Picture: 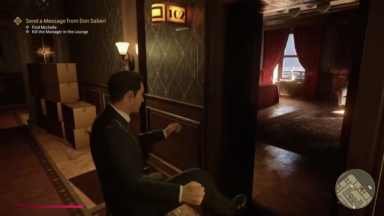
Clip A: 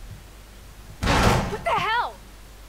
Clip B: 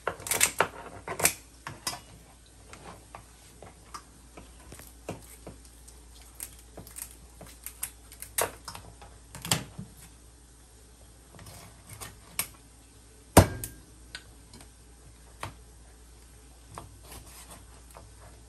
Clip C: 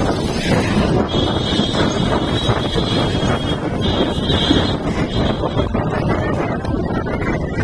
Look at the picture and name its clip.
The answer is A